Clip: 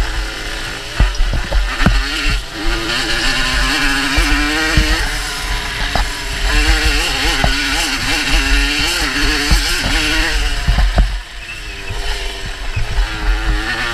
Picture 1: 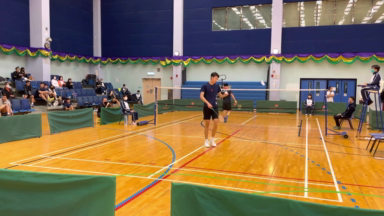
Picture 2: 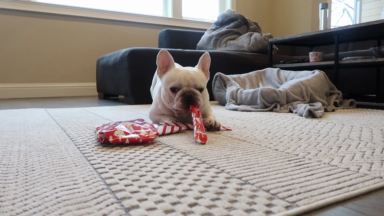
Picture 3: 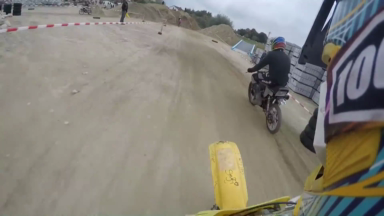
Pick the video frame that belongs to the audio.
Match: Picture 3